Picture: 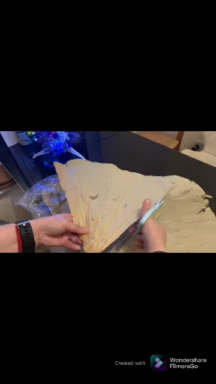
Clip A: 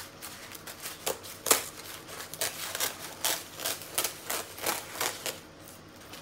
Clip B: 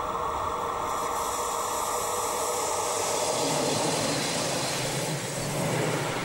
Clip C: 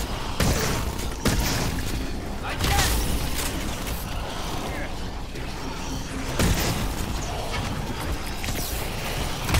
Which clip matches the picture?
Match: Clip A